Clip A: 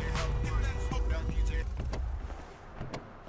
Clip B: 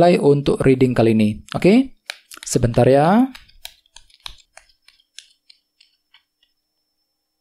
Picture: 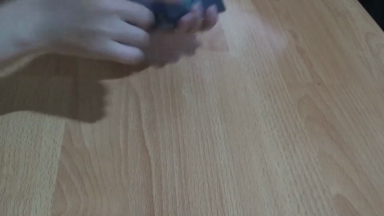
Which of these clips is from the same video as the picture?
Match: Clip B